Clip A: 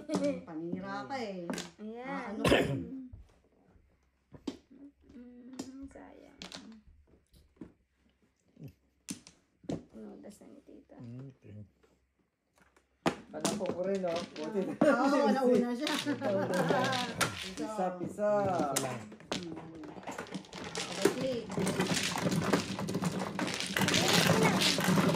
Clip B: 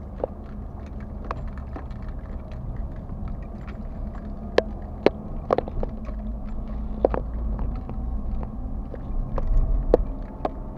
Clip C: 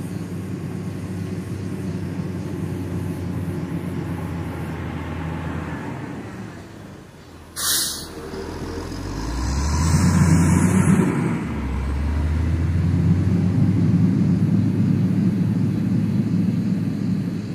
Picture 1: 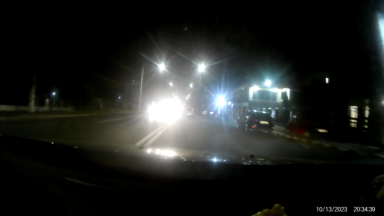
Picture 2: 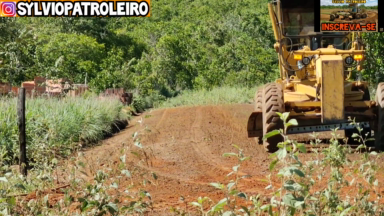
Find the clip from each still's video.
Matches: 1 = B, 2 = C